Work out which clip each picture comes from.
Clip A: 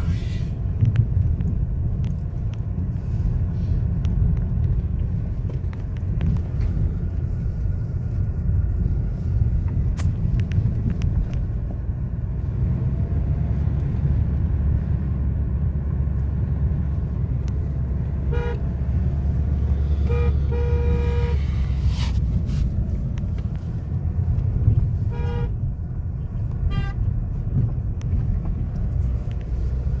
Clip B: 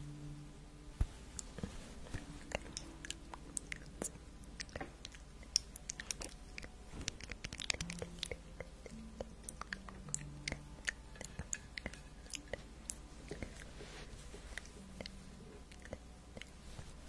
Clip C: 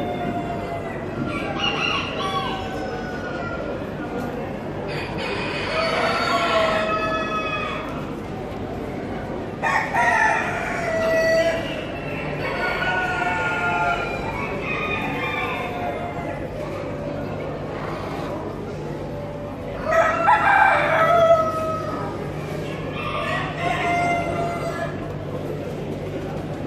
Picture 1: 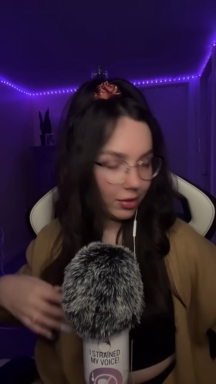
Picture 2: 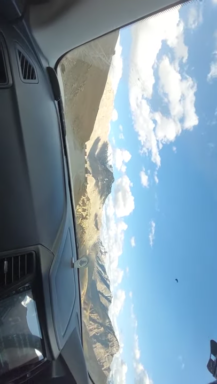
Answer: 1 B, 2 A